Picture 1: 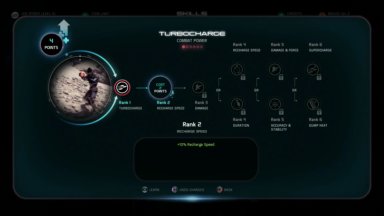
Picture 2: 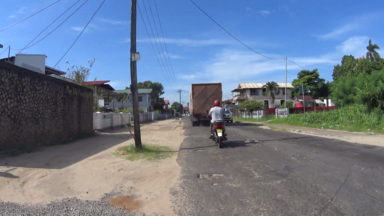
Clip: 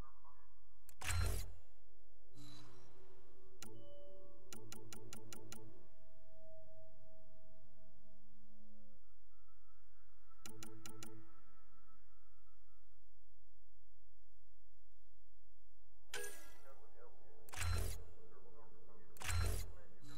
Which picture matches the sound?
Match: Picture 1